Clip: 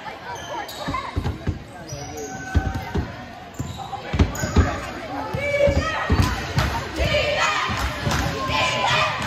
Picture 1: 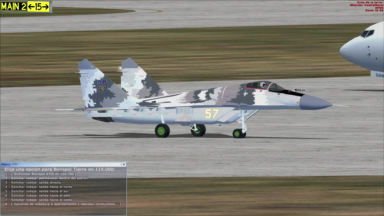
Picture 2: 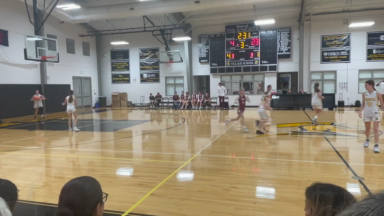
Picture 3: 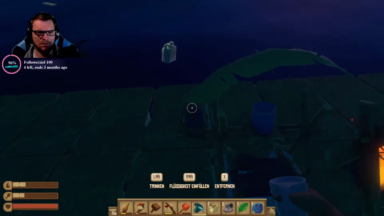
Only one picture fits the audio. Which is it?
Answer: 2